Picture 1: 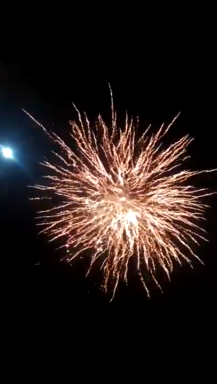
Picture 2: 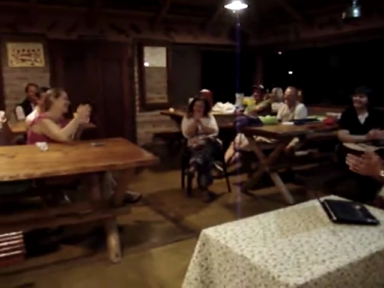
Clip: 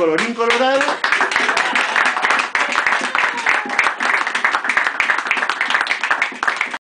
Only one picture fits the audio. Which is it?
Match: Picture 2